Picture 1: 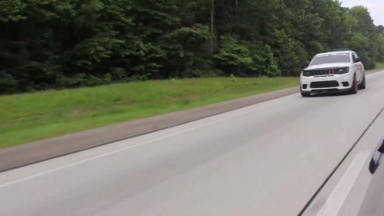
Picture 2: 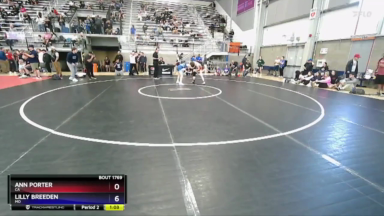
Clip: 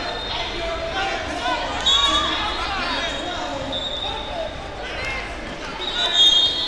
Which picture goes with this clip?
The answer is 2